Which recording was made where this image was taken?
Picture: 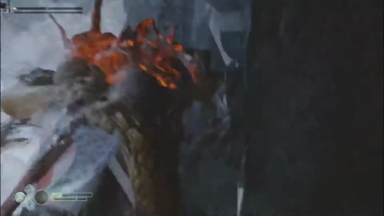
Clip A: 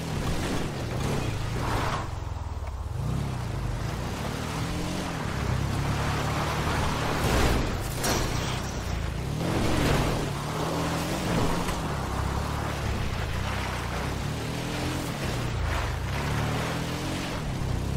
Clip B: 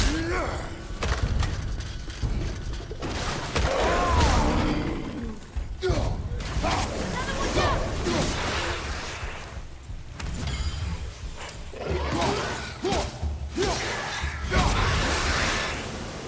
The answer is B